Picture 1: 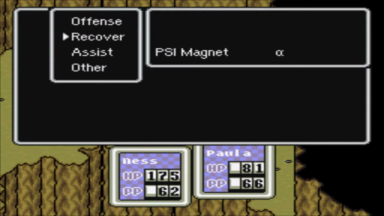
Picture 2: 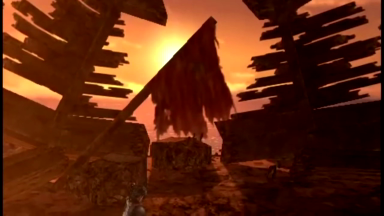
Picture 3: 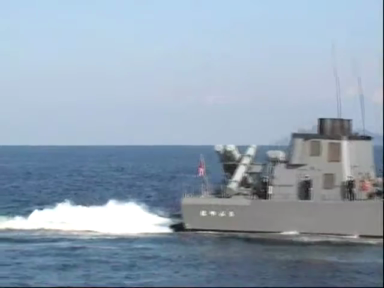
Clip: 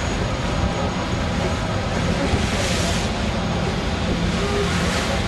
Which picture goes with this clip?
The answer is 3